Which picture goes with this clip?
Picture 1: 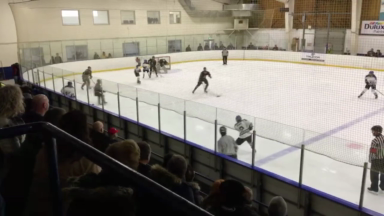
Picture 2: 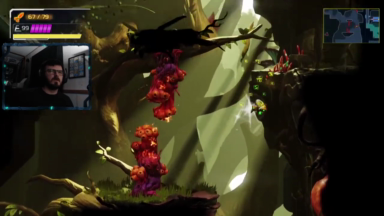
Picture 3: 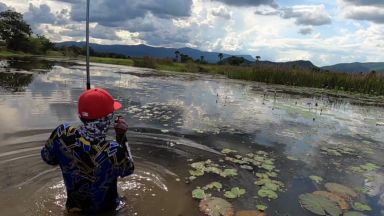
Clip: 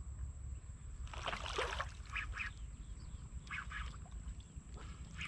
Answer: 3